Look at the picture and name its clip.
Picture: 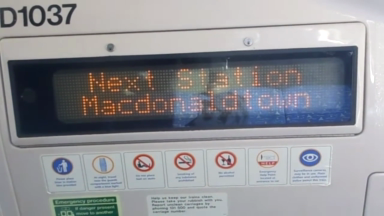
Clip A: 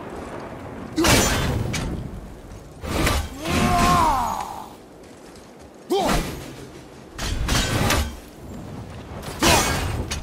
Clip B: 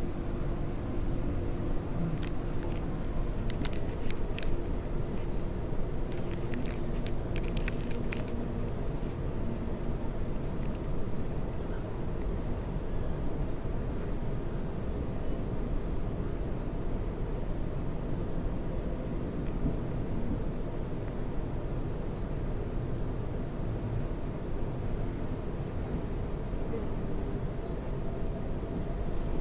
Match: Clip B